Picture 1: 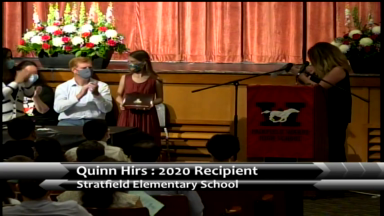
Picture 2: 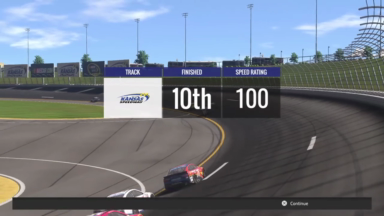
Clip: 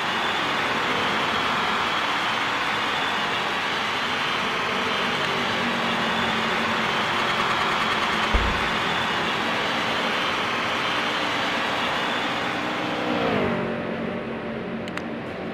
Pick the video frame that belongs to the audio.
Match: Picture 2